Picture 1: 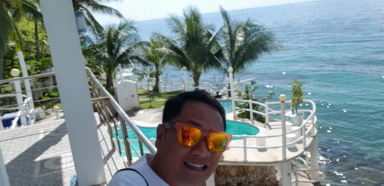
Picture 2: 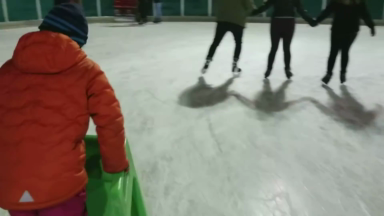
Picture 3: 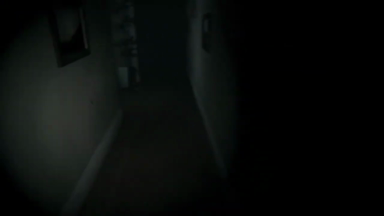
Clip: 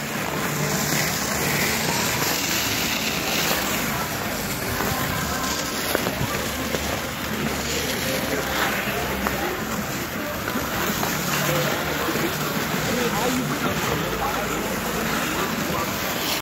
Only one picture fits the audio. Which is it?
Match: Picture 2